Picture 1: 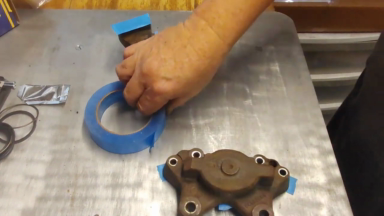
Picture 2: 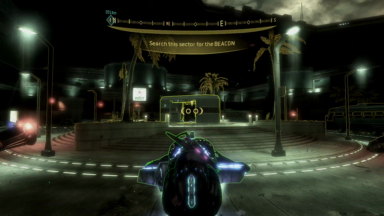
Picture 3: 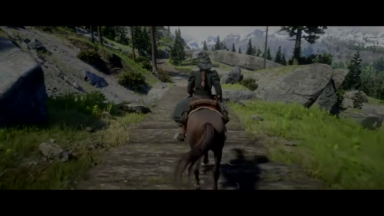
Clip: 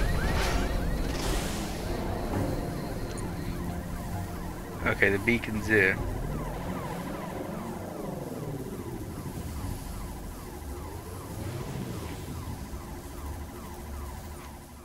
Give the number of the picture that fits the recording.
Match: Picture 2